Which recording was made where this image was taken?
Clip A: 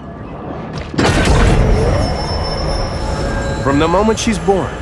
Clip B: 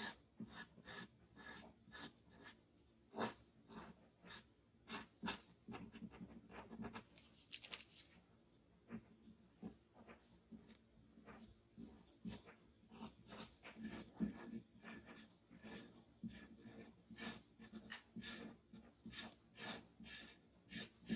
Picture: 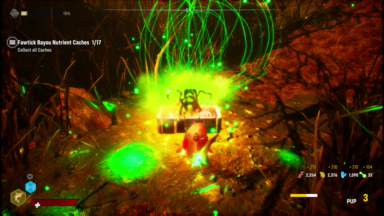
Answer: A